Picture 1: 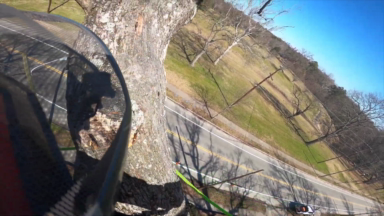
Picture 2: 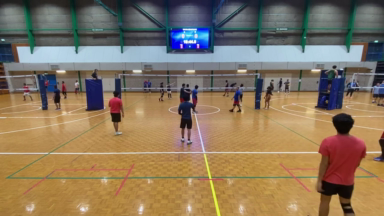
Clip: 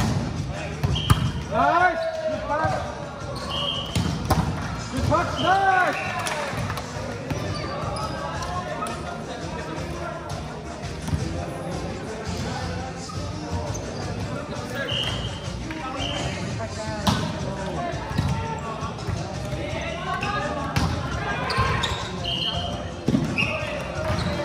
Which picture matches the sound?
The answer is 2